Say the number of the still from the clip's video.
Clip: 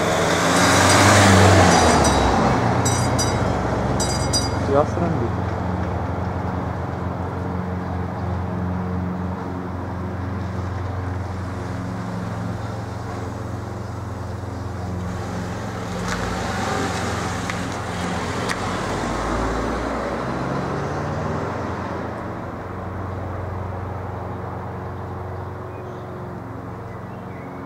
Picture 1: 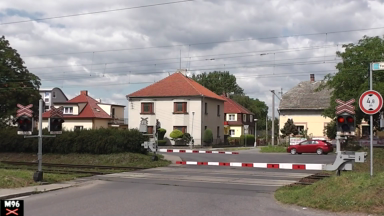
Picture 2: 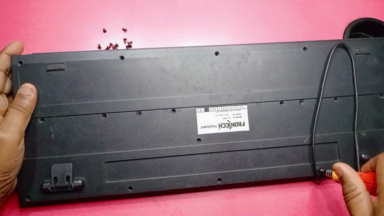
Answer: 1